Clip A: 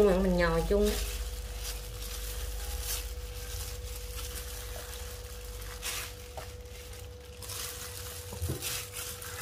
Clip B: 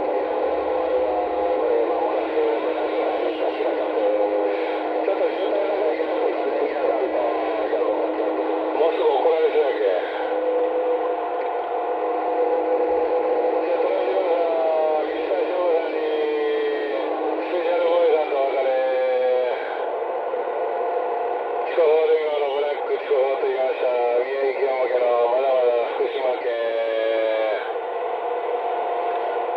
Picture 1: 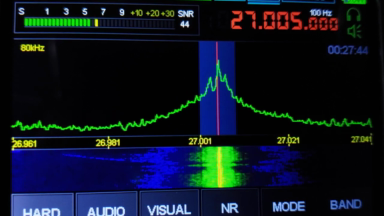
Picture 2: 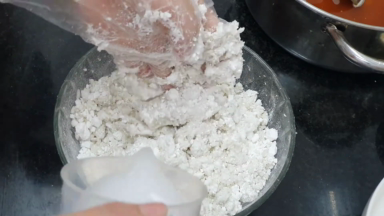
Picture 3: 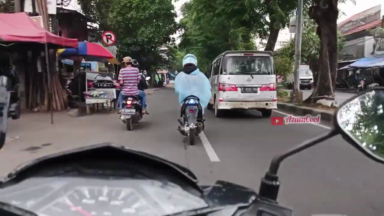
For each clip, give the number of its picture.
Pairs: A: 2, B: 1